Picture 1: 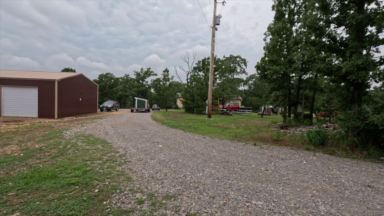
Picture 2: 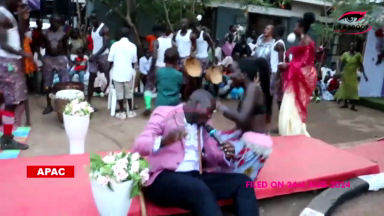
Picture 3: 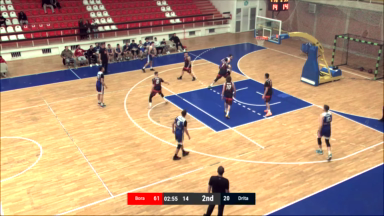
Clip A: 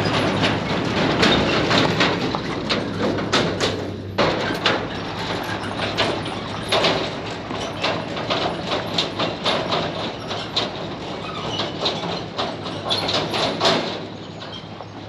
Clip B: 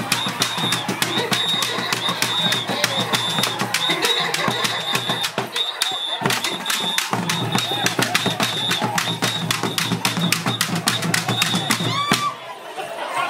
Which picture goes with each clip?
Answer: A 1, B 2